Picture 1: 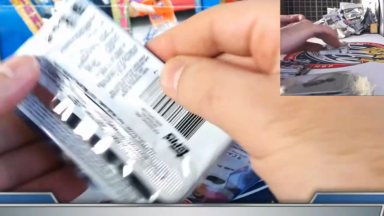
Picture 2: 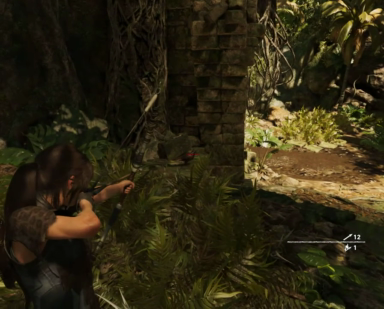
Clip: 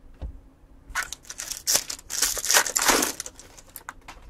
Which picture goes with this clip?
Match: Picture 1